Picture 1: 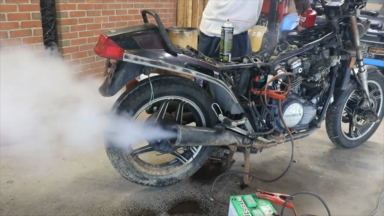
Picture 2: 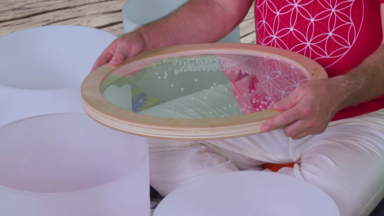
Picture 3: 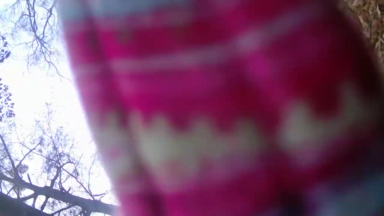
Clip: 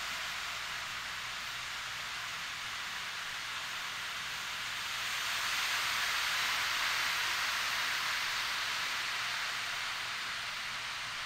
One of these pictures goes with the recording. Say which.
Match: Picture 2